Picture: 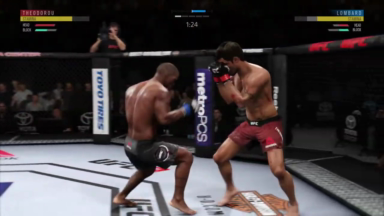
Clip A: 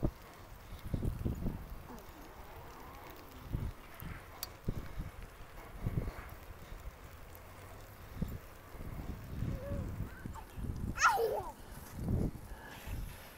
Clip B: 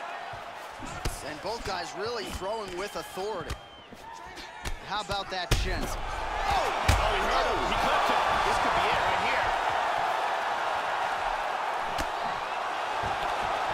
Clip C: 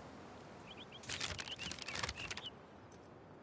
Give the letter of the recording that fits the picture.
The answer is B